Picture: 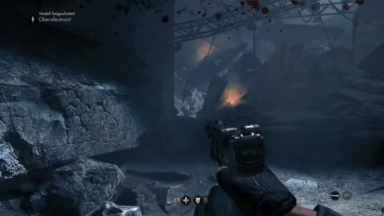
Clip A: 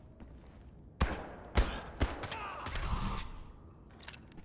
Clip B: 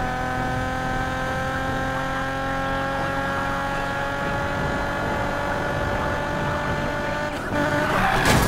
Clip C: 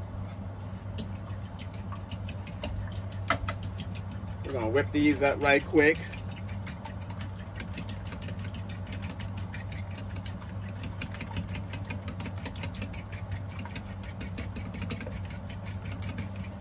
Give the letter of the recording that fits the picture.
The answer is A